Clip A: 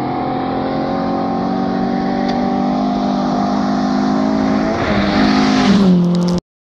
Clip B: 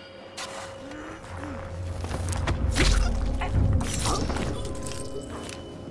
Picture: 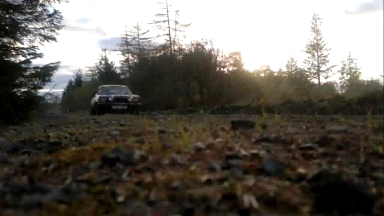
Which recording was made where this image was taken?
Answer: A